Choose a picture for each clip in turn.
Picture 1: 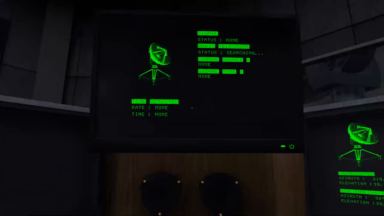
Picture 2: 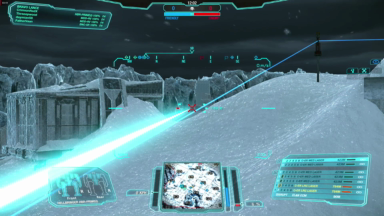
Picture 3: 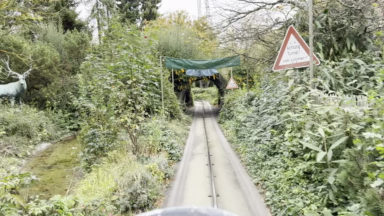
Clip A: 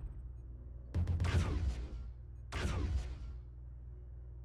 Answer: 2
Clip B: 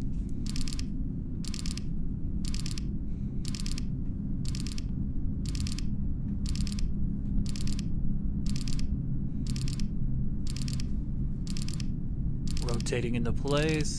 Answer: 1